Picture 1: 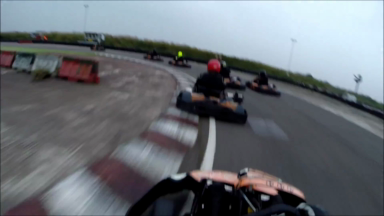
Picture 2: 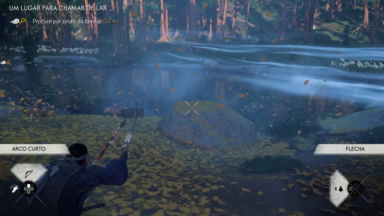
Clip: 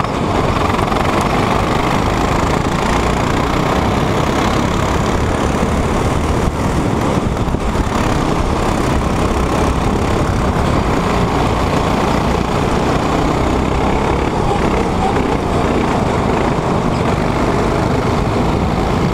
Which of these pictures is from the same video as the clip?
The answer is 1